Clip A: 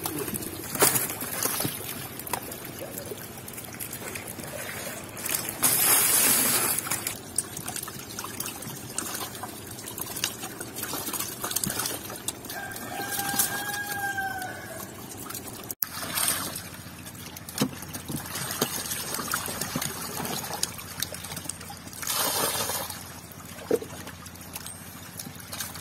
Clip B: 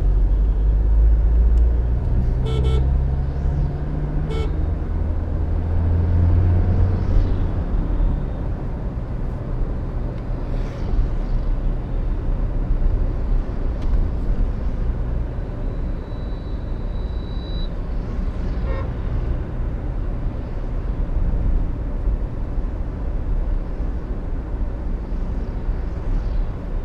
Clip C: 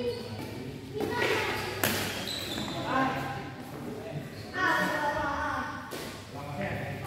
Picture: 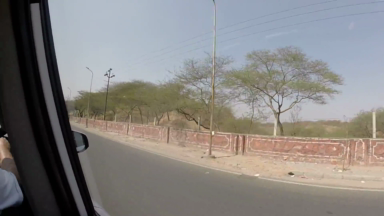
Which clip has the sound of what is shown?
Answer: B